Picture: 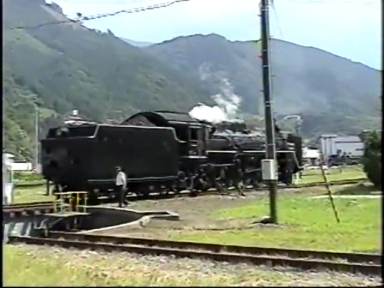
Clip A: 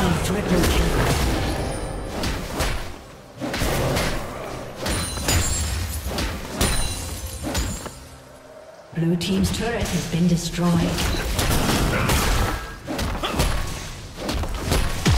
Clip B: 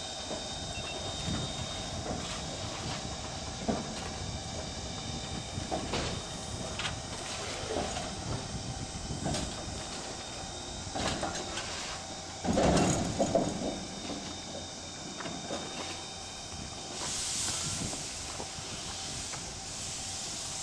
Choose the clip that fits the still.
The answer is B